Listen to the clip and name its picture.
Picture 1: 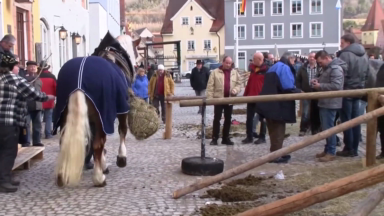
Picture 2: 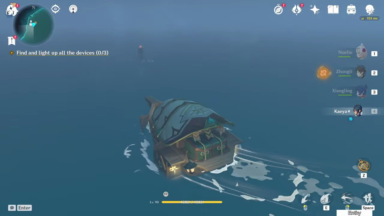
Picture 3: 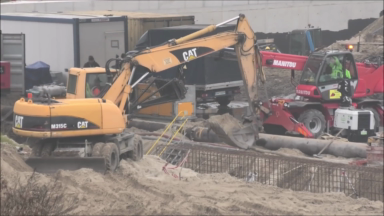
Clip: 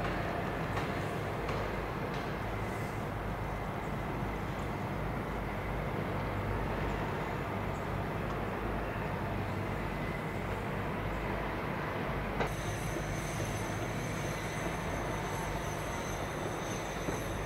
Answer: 3